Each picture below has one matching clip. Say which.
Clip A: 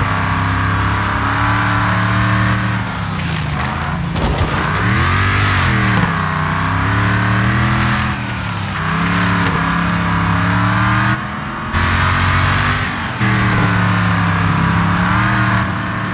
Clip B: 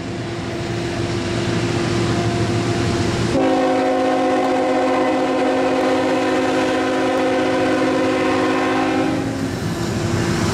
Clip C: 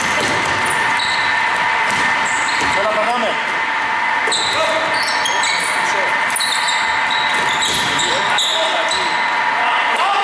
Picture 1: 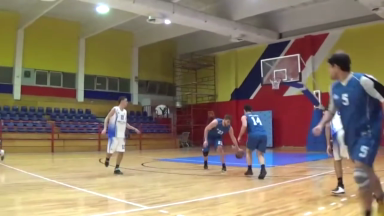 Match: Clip C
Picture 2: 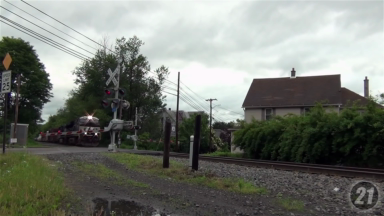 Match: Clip B